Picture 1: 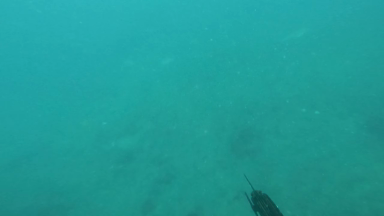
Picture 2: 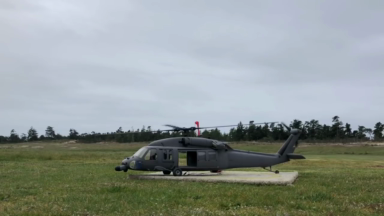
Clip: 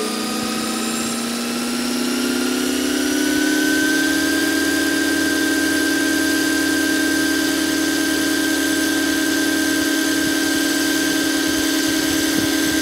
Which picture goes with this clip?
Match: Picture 2